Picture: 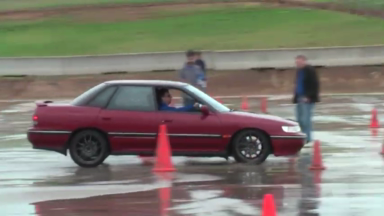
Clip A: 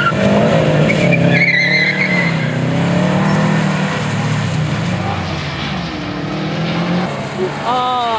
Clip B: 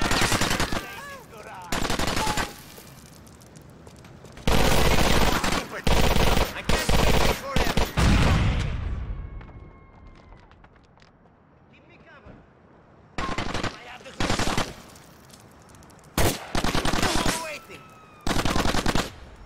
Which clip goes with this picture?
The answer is A